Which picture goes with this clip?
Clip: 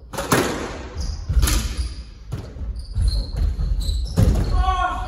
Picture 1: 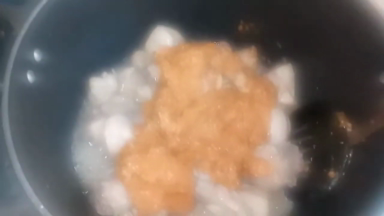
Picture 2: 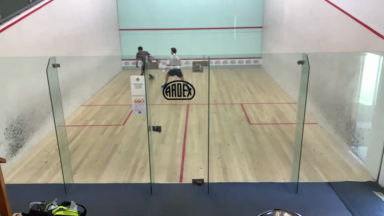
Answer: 2